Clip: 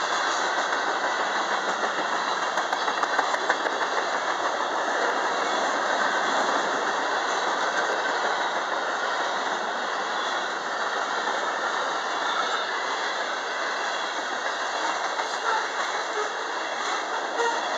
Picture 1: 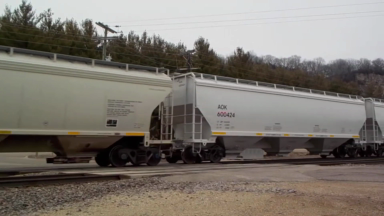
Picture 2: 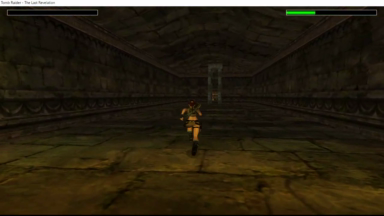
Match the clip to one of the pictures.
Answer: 1